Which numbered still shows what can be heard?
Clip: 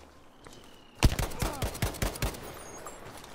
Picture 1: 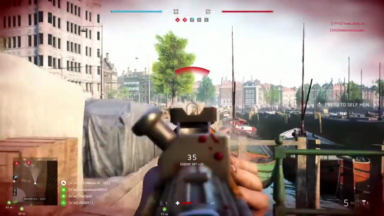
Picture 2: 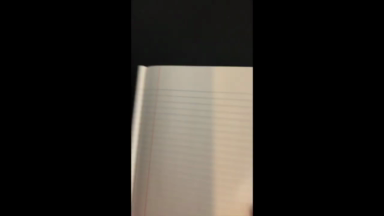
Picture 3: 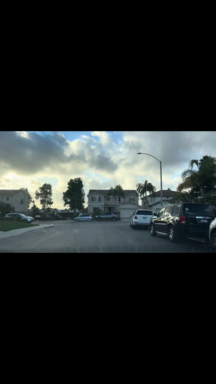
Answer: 1